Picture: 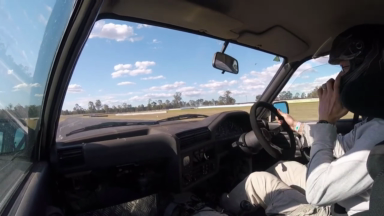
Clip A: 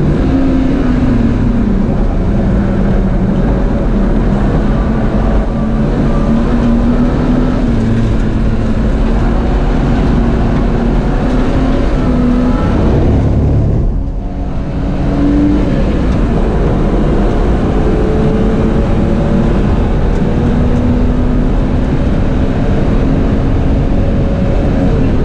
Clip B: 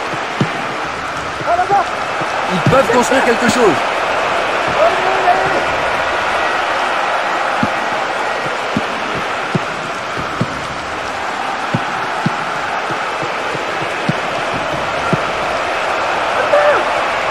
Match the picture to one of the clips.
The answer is A